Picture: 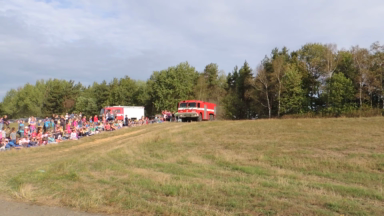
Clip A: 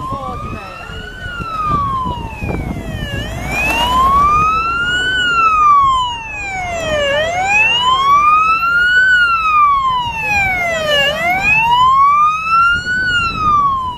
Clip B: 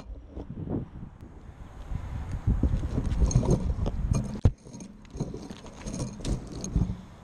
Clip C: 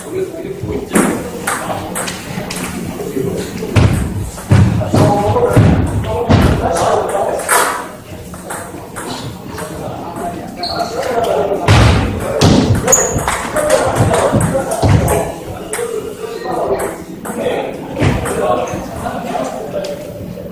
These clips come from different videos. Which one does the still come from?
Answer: A